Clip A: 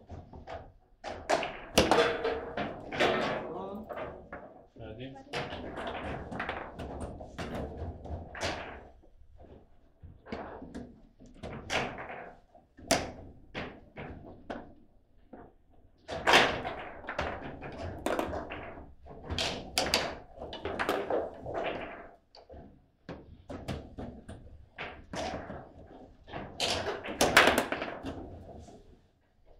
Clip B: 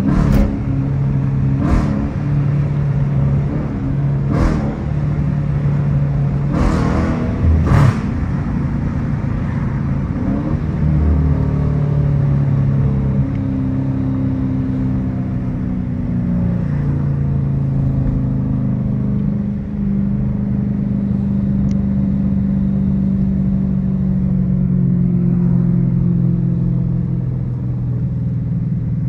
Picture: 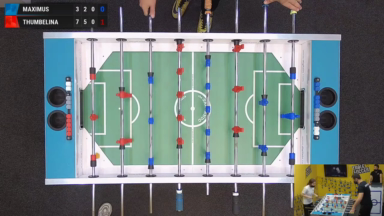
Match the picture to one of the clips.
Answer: A